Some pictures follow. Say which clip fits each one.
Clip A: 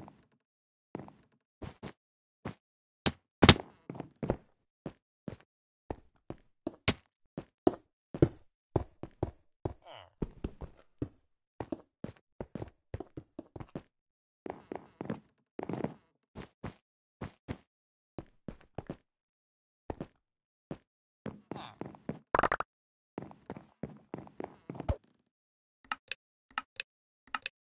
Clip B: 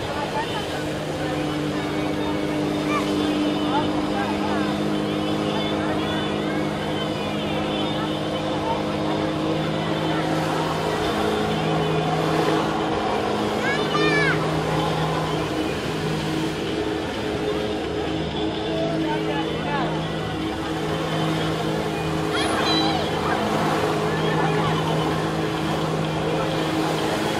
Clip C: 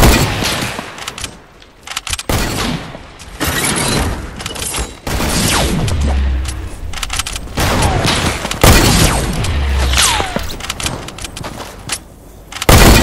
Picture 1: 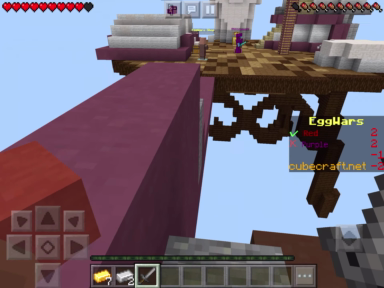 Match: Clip A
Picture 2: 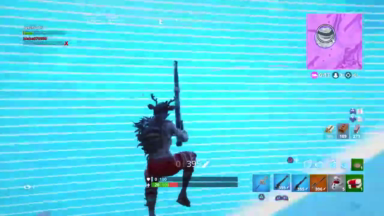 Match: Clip C